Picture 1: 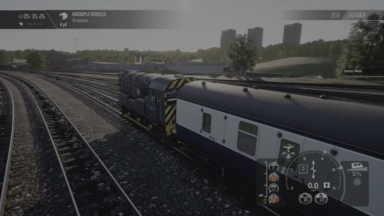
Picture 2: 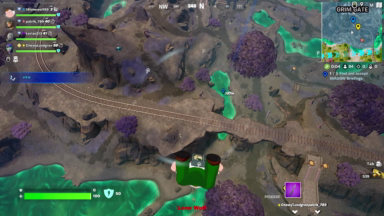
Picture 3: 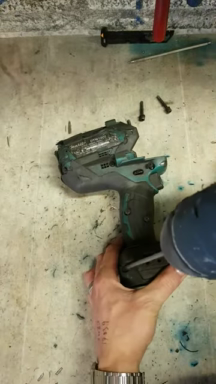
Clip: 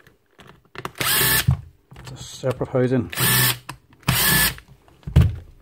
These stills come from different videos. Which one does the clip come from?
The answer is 3